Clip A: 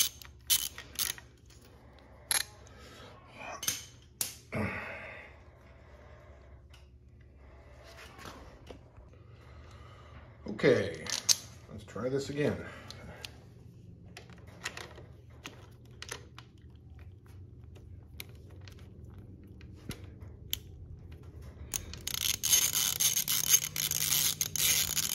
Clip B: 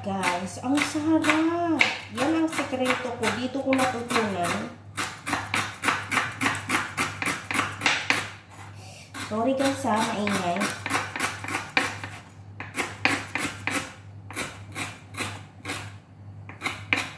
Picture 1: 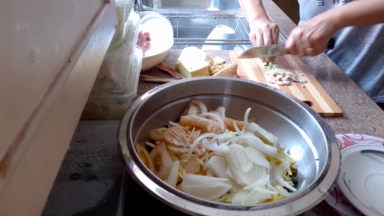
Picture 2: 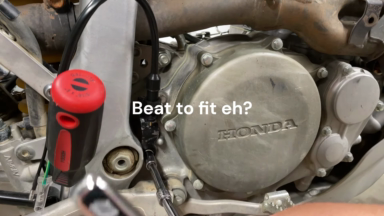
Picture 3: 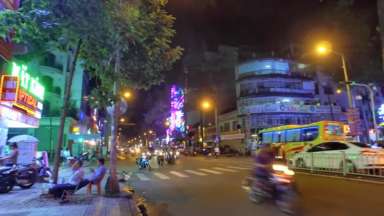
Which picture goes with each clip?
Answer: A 2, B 1